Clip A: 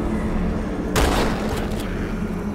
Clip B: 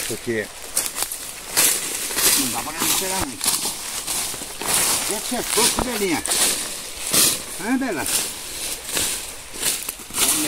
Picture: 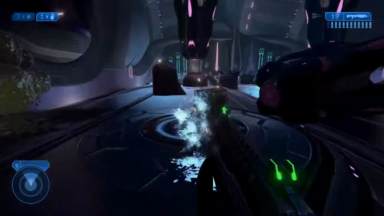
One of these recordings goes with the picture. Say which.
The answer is A